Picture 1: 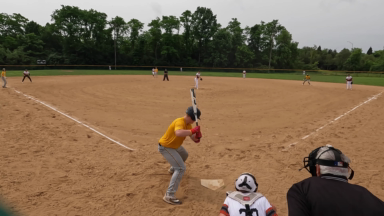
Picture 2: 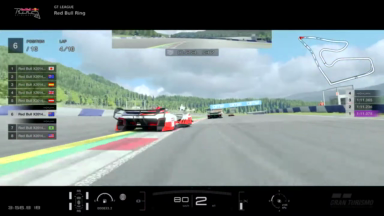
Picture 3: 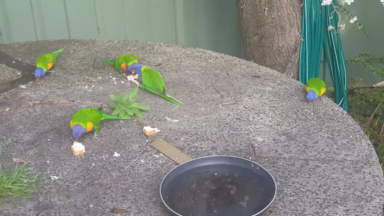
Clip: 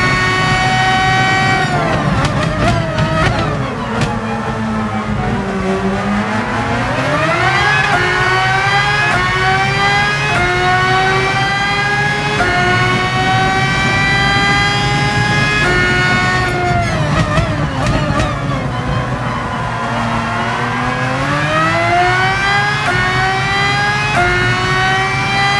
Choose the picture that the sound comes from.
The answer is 2